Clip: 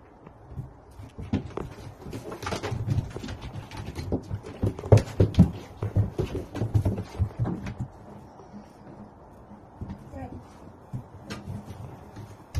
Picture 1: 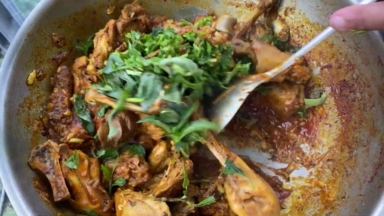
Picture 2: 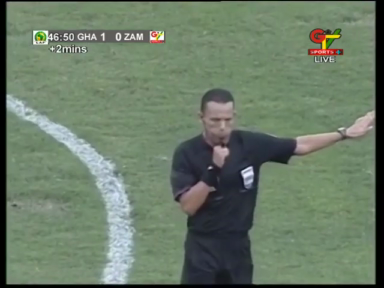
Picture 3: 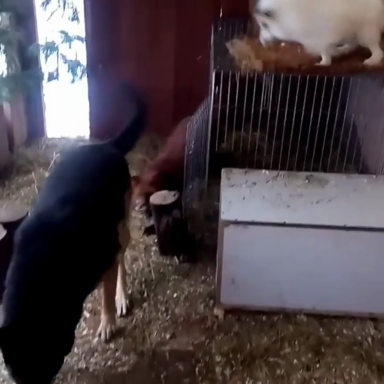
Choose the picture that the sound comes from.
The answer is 3